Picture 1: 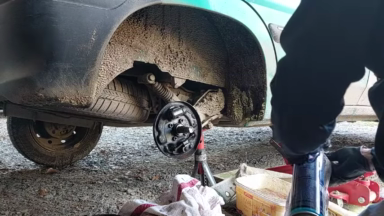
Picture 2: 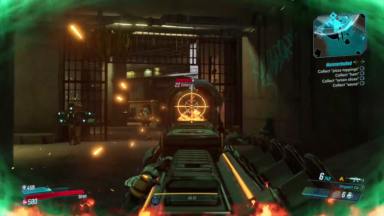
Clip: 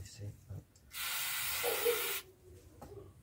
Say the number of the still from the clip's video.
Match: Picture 1